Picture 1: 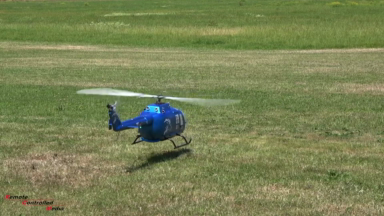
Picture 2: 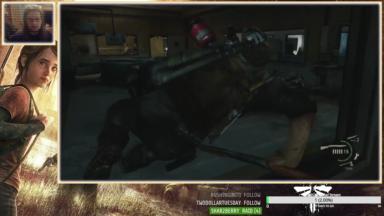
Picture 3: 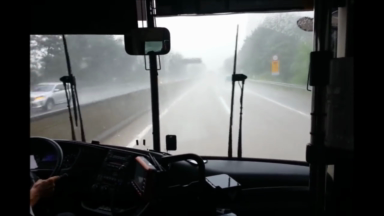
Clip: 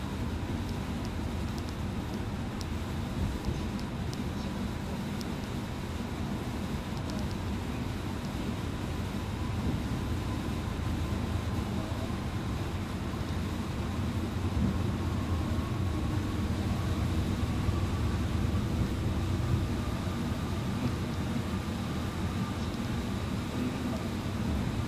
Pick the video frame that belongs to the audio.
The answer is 3